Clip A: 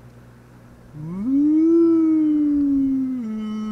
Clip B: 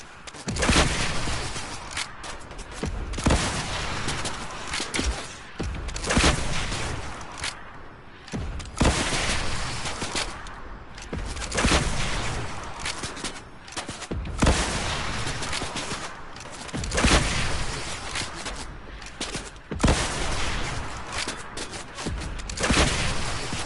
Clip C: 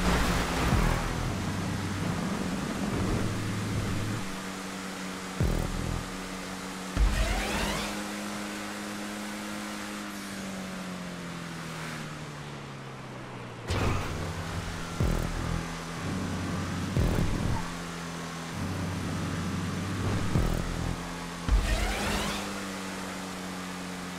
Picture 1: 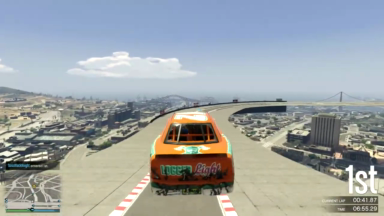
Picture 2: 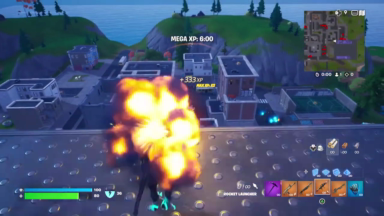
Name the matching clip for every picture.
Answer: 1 C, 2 B